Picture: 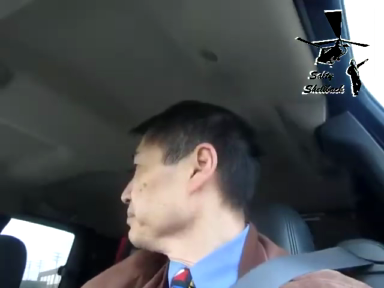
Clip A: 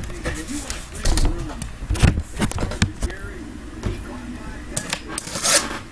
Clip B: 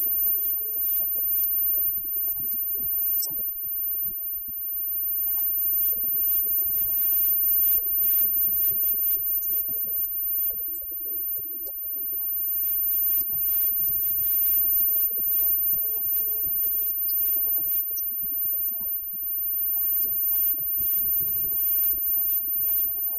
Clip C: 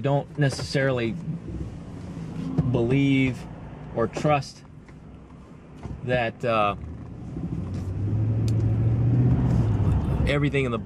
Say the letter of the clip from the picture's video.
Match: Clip C